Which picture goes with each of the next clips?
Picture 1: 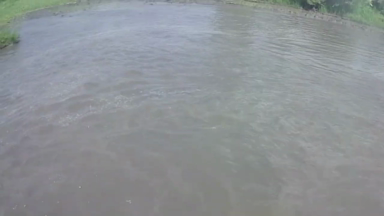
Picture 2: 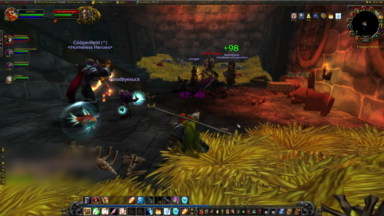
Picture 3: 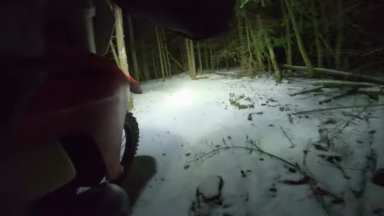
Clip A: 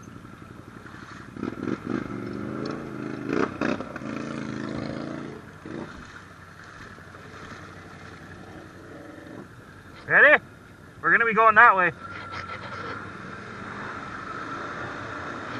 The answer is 1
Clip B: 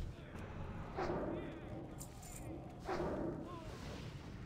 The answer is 2